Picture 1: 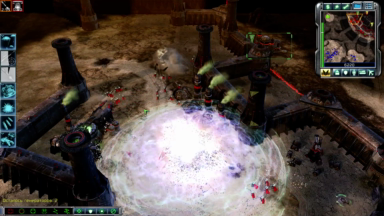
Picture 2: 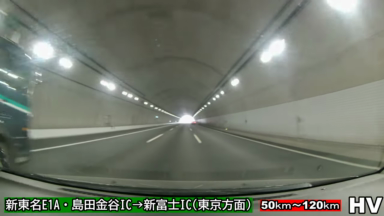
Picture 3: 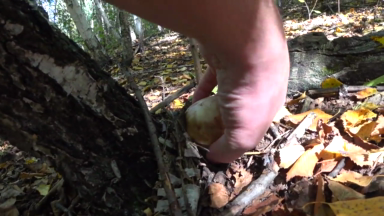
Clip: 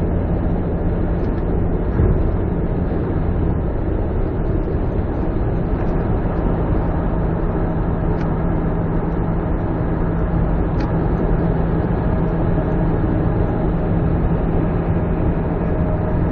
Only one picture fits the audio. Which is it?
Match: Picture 2